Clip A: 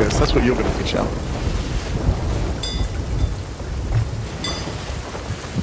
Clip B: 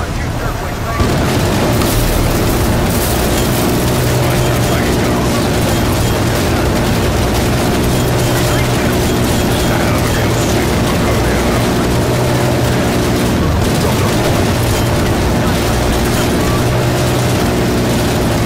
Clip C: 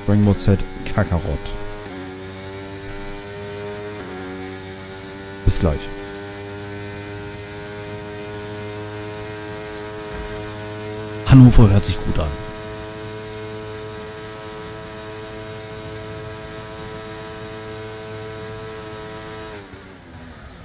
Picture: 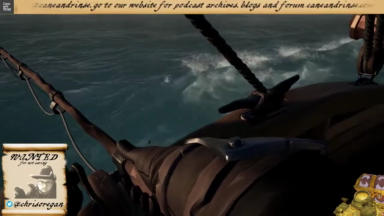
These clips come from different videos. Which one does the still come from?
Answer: A